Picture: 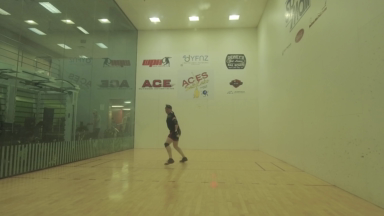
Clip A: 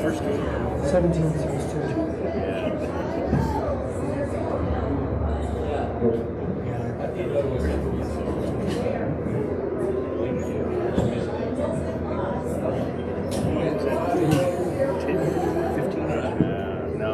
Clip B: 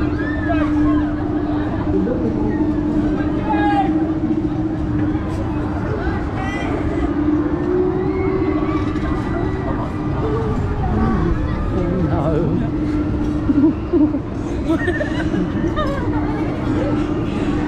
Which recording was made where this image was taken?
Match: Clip A